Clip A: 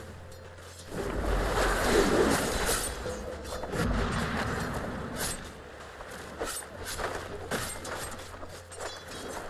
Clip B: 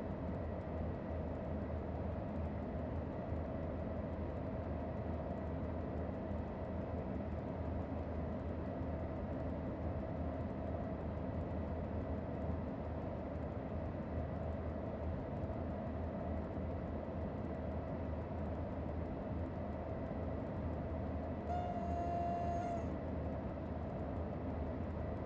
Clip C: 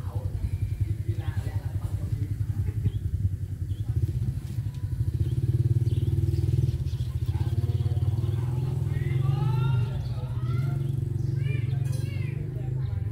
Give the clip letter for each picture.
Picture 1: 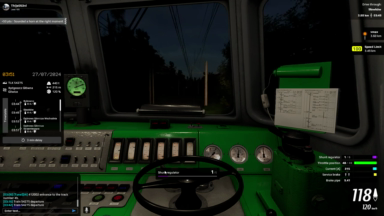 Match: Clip B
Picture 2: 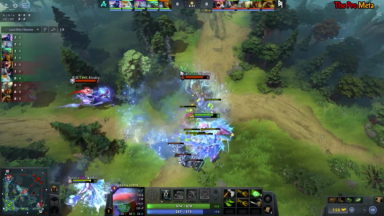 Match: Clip A